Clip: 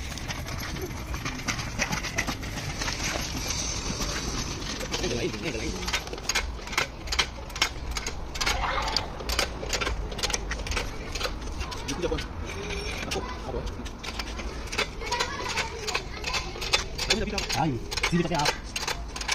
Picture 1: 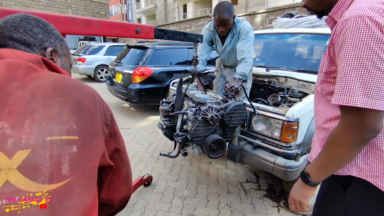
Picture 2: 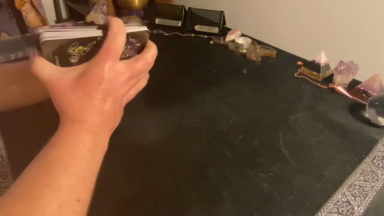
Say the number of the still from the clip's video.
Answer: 1